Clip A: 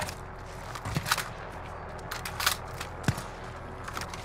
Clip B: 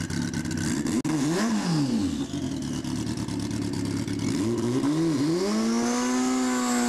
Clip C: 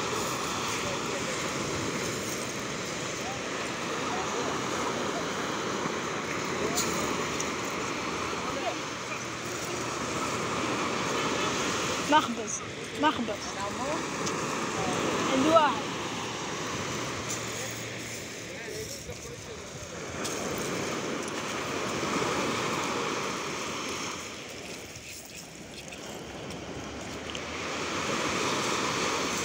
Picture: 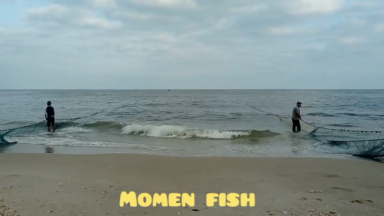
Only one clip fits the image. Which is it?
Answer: C